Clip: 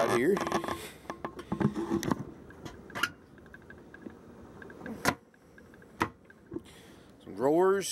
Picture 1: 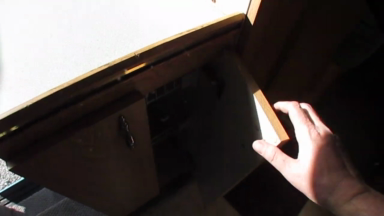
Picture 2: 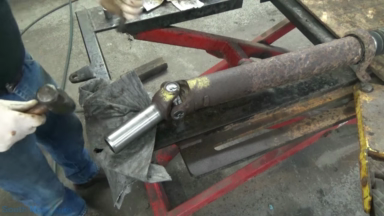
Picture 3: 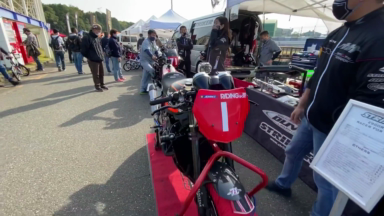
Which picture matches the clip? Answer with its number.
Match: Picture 1